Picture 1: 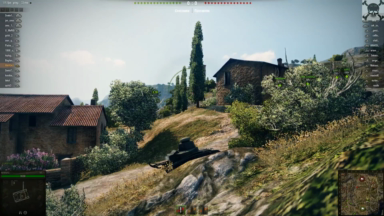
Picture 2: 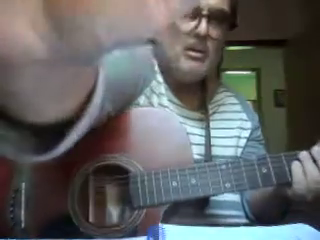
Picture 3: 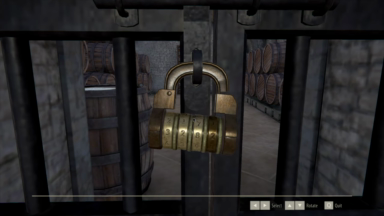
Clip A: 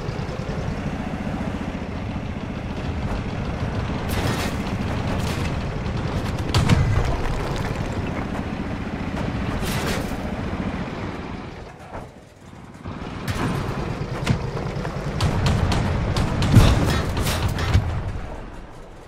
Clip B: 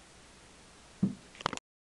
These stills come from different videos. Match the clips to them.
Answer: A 1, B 2